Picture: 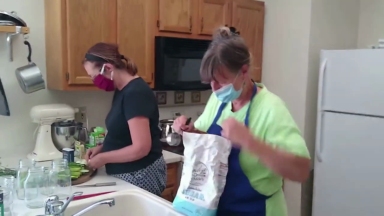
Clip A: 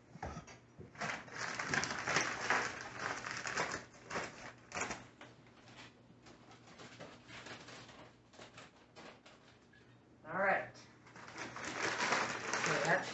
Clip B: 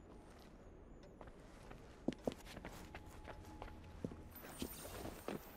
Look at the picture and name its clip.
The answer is A